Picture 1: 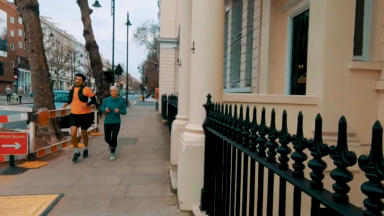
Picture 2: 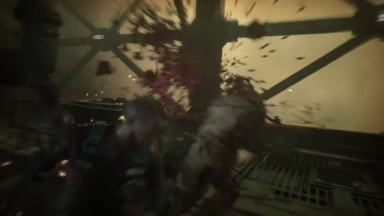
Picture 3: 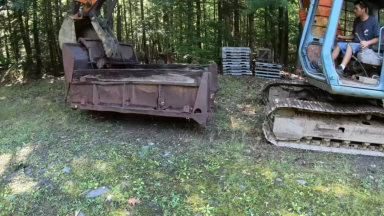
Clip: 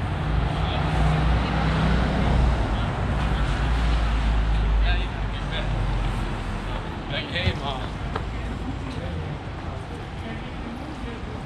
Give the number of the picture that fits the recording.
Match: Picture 1